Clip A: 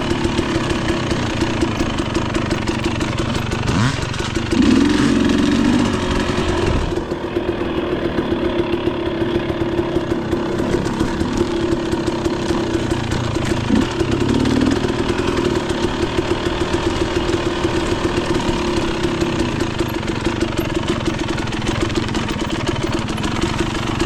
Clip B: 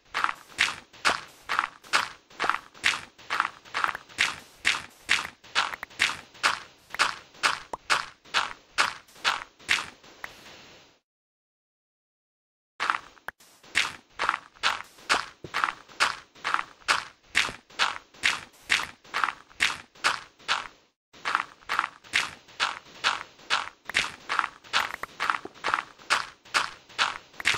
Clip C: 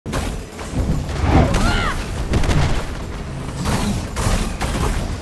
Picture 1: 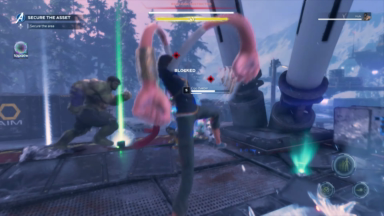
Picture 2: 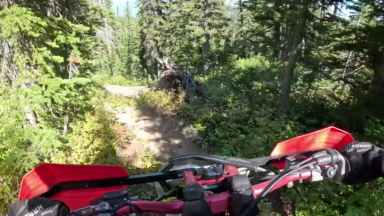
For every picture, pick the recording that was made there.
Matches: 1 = C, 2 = A